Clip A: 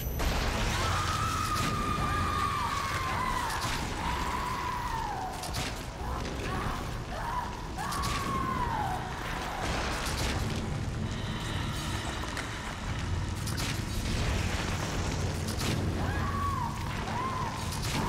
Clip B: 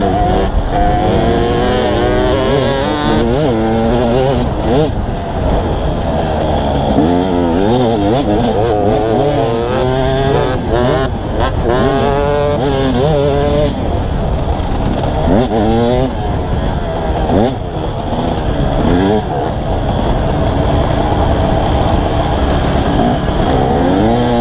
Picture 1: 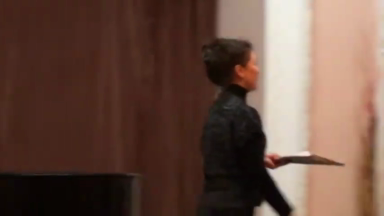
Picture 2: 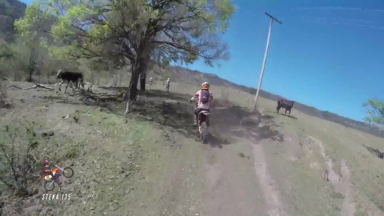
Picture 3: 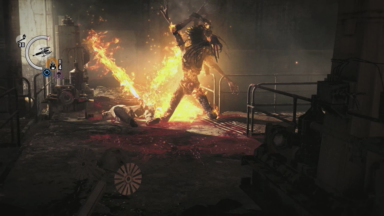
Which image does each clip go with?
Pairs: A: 3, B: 2